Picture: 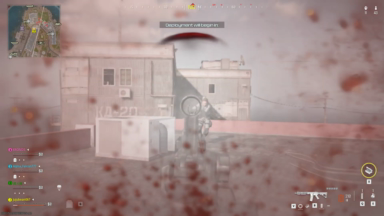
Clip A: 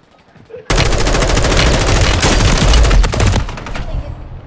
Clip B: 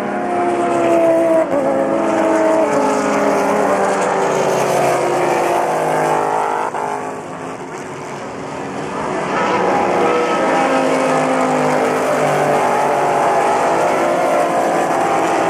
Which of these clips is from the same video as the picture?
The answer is A